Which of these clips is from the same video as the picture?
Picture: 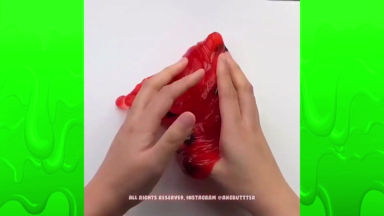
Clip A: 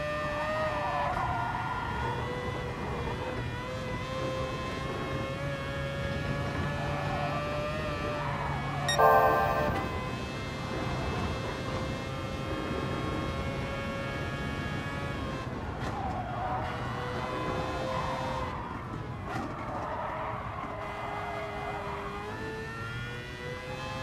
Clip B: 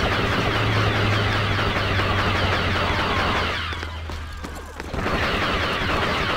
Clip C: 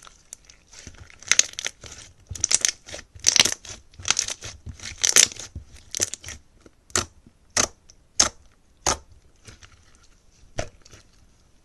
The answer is C